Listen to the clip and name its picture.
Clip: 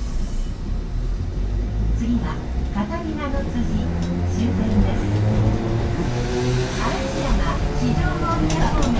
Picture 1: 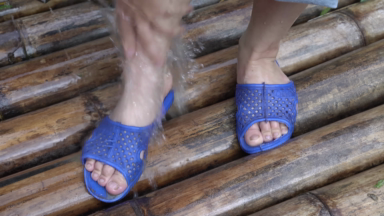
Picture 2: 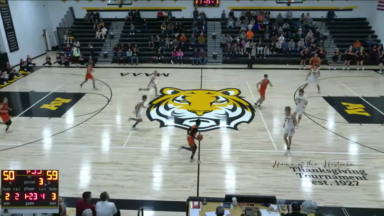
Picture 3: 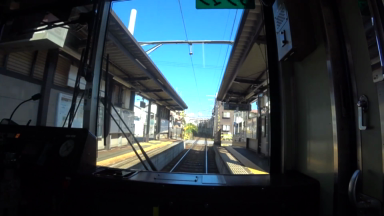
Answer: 3